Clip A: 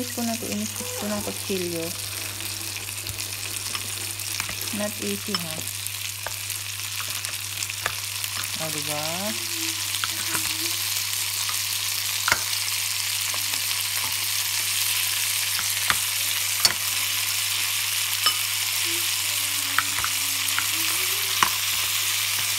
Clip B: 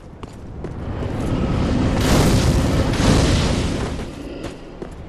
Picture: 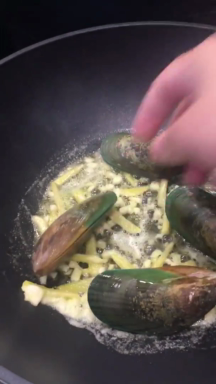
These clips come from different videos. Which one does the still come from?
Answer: A